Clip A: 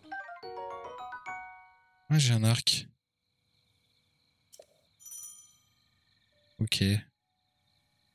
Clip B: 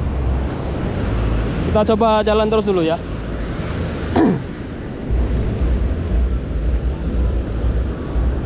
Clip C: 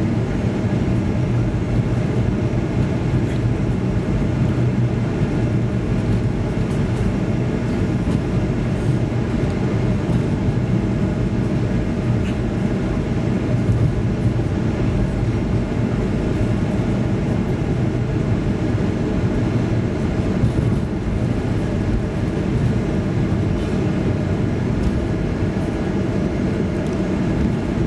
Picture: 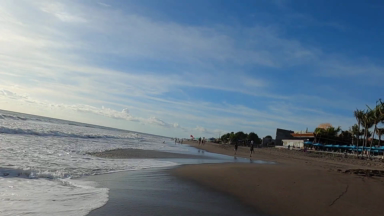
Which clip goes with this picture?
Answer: B